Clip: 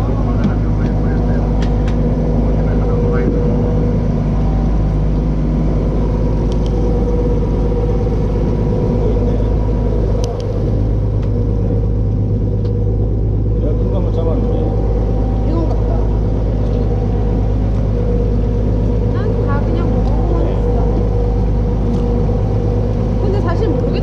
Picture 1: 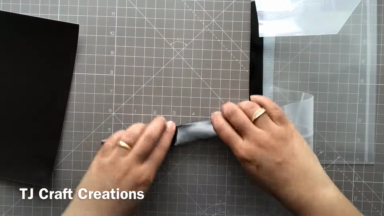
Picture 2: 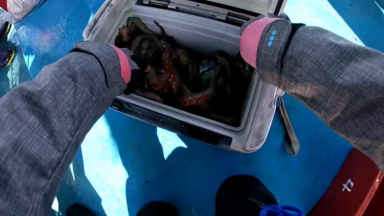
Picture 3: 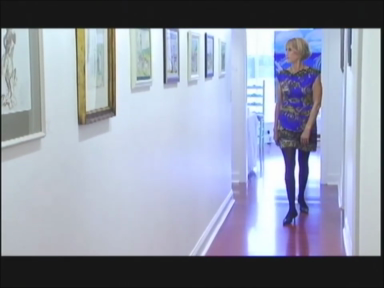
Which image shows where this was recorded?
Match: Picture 2